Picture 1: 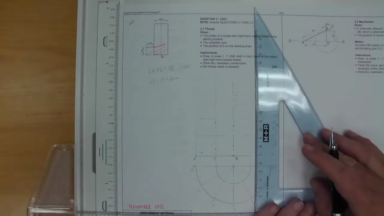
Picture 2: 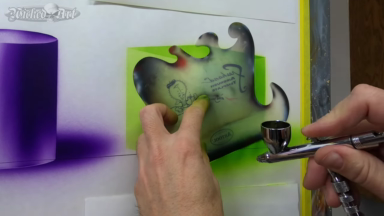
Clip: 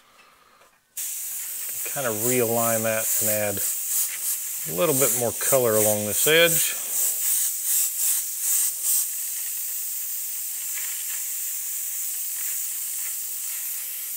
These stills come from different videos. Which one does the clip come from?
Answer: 2